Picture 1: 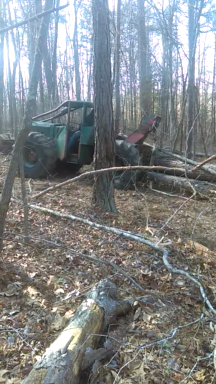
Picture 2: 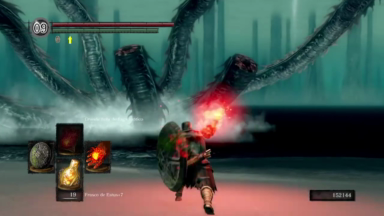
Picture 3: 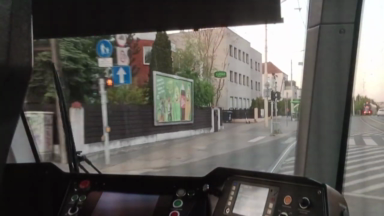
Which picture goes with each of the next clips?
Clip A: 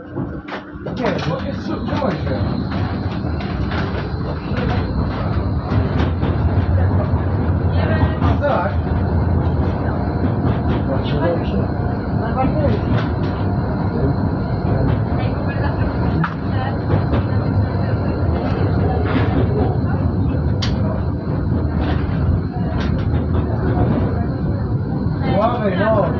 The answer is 3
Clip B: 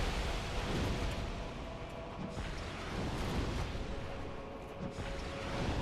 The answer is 2